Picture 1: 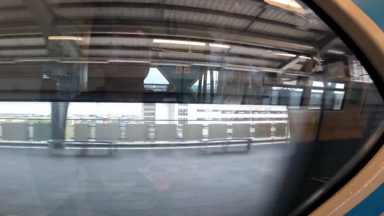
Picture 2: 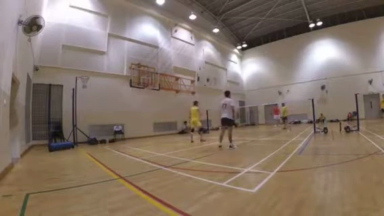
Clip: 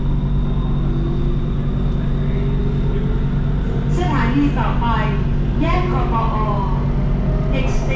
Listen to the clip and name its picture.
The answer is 1